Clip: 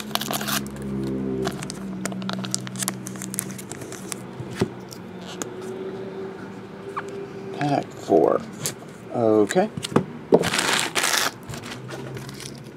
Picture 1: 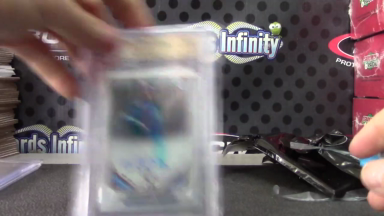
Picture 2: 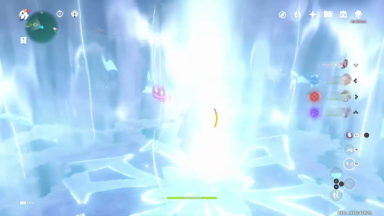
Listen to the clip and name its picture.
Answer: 1